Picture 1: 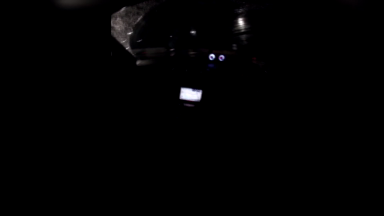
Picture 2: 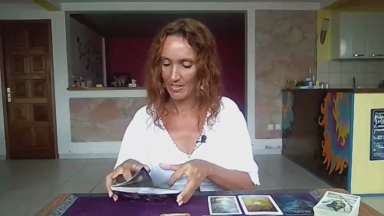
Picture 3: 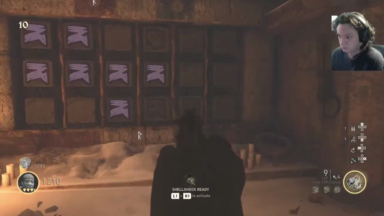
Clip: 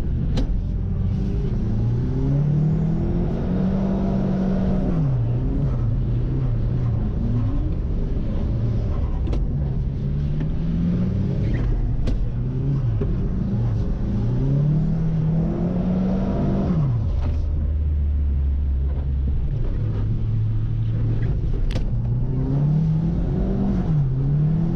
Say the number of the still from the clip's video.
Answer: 1